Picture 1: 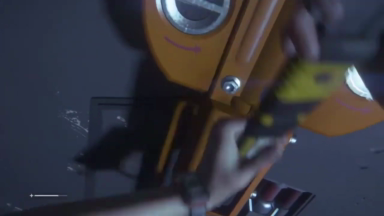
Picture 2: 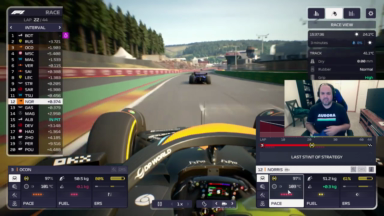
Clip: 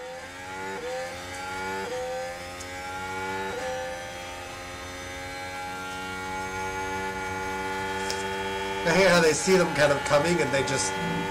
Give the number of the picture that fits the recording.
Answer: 2